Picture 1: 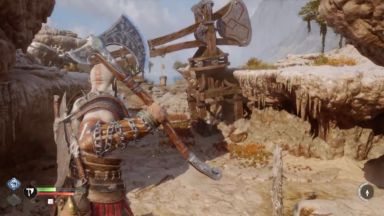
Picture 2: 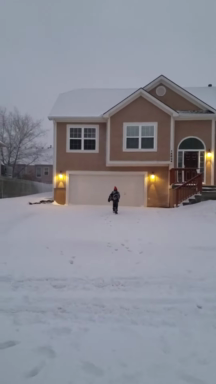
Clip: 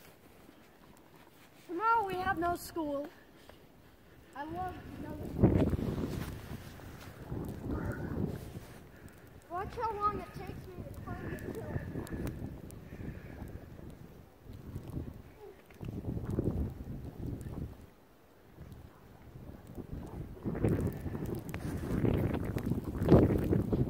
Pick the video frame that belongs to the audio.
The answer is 2